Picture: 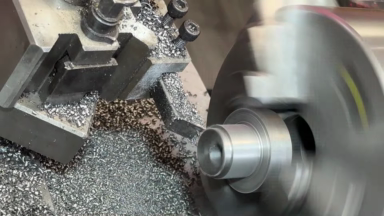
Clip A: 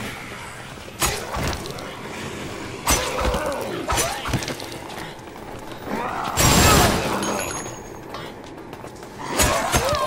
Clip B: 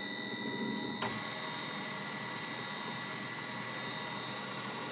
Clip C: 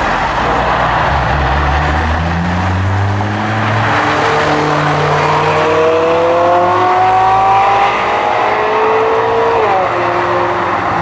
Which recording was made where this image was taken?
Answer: B